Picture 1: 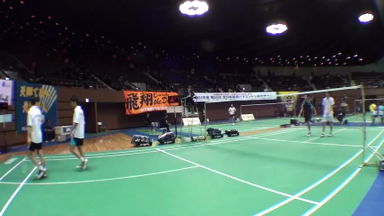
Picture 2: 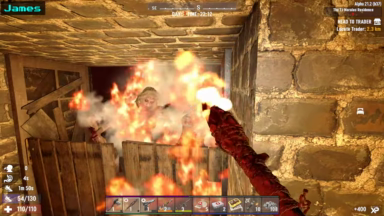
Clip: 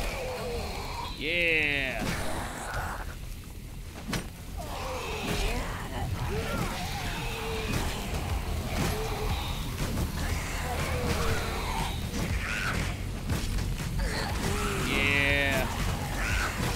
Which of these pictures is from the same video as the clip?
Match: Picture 2